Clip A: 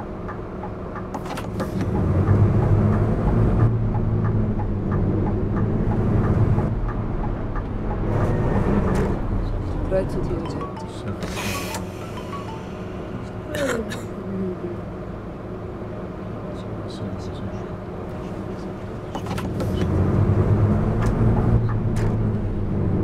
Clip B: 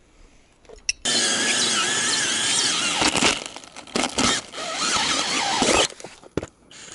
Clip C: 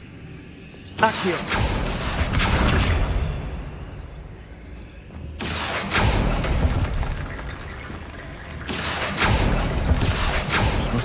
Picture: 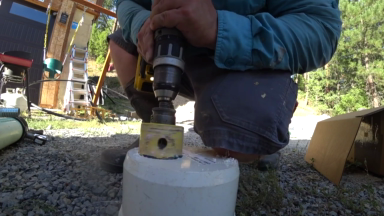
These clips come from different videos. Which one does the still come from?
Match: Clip B